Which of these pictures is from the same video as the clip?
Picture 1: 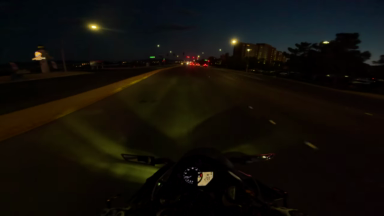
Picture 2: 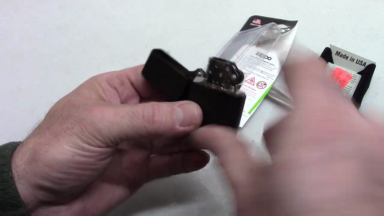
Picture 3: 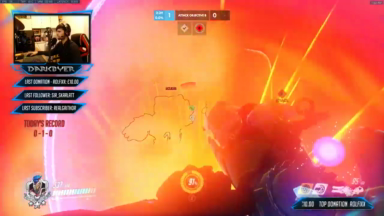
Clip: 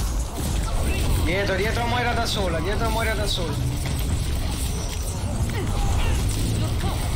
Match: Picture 3